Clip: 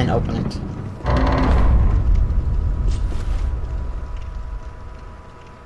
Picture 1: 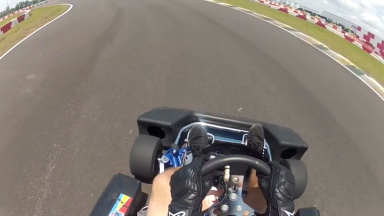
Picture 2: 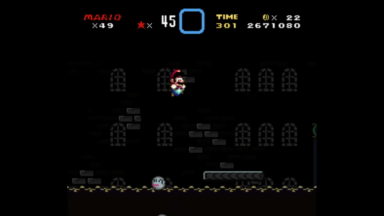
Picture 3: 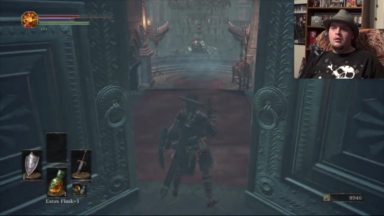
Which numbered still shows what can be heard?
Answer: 3